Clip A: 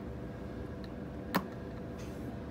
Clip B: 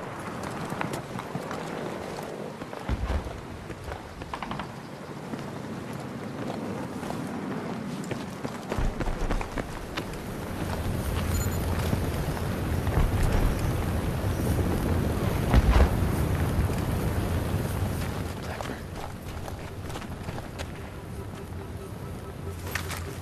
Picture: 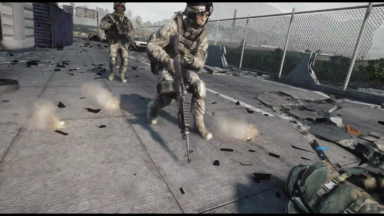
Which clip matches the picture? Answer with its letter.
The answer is B